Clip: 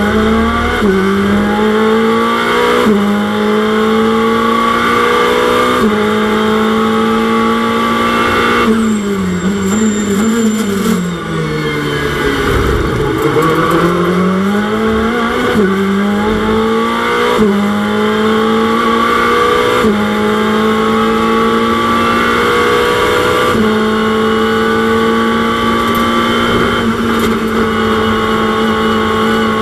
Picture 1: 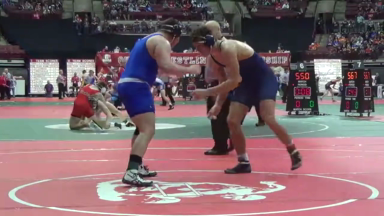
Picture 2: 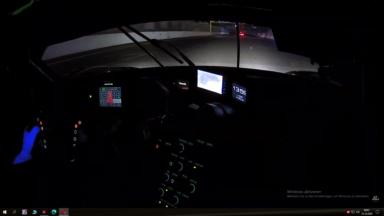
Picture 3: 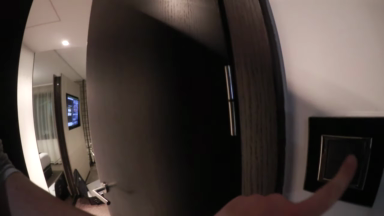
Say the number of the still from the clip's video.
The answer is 2